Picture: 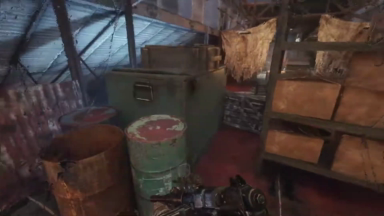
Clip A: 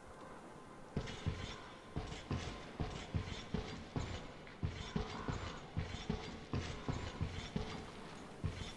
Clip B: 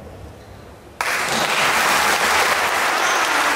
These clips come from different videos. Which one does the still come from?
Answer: A